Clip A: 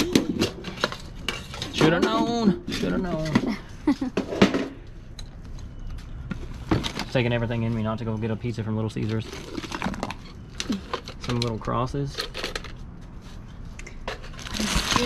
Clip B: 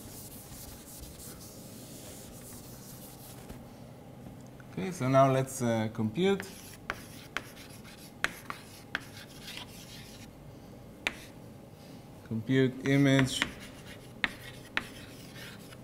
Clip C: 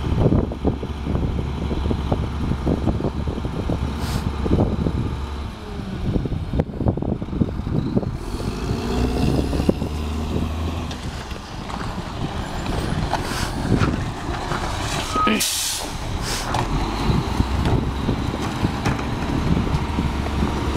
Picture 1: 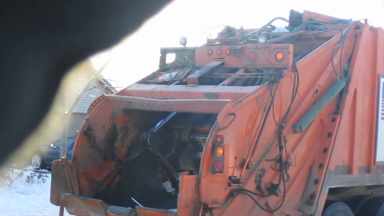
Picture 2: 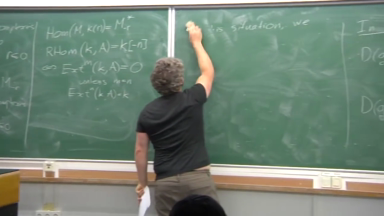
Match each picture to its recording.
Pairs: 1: C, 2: B